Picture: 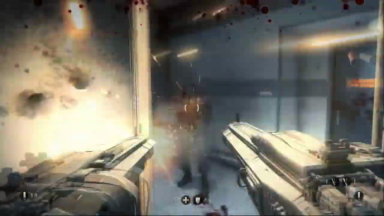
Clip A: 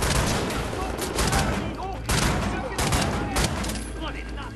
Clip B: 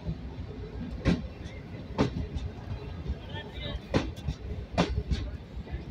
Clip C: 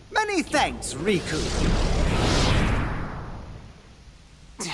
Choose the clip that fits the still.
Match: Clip A